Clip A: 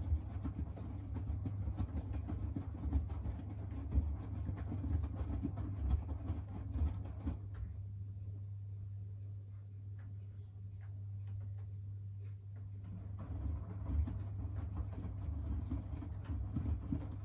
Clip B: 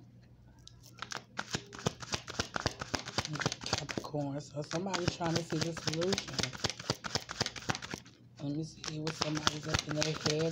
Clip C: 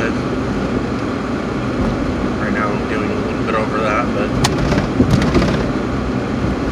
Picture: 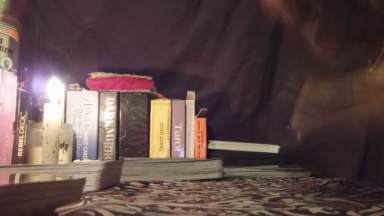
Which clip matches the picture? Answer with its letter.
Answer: B